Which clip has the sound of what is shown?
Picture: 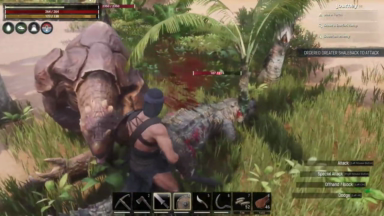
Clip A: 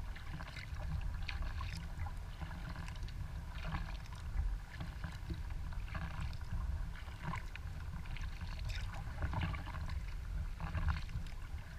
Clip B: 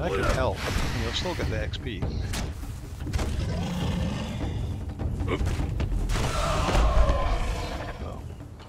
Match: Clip B